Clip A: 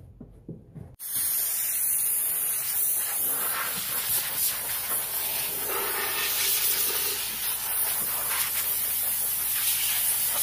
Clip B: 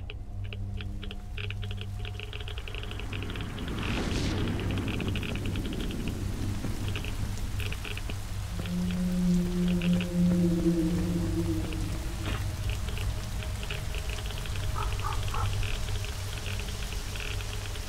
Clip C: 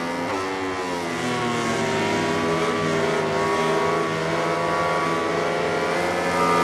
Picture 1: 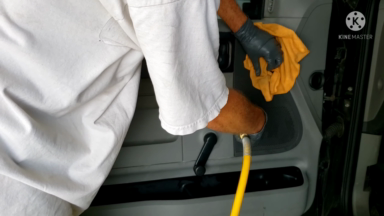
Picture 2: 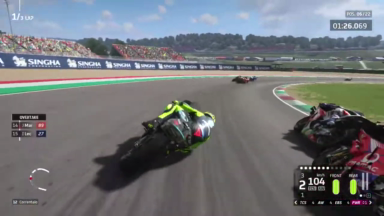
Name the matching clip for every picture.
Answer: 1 A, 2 C